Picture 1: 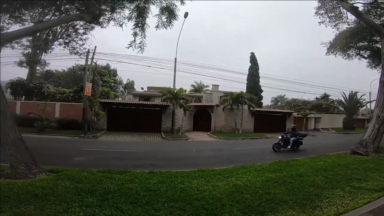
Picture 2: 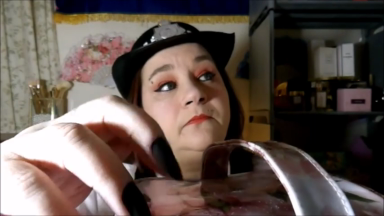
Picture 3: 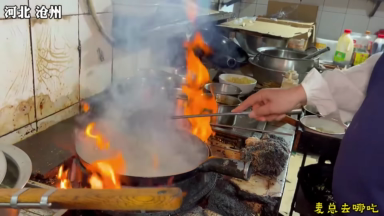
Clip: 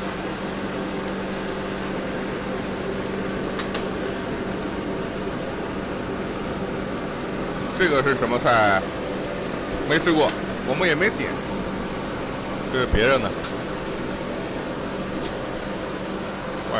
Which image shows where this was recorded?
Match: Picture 3